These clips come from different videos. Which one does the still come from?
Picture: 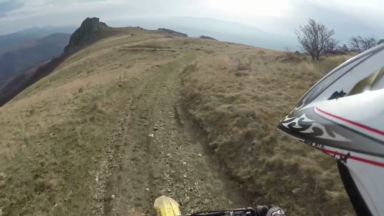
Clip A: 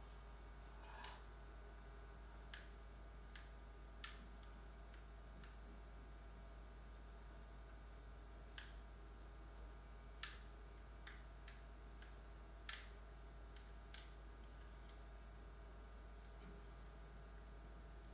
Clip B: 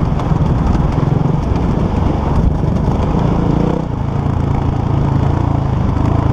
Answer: B